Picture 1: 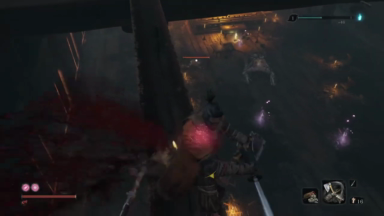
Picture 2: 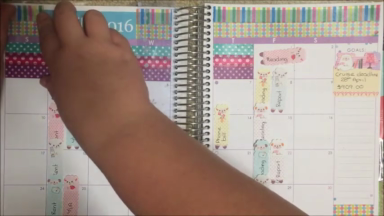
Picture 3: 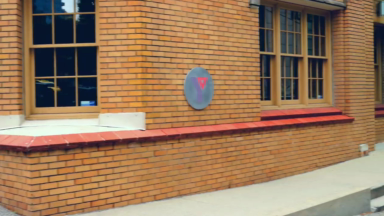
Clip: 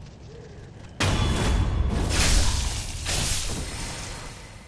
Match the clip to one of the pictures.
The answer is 1